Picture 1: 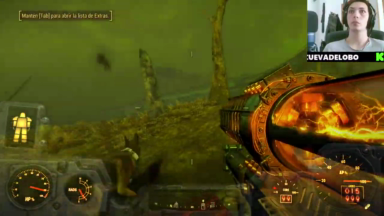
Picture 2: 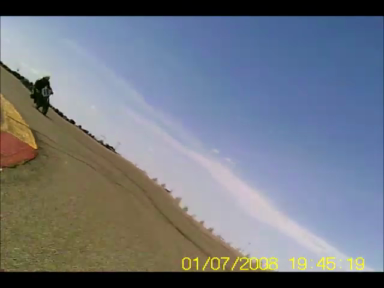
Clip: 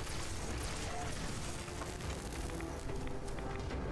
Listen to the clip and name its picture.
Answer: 1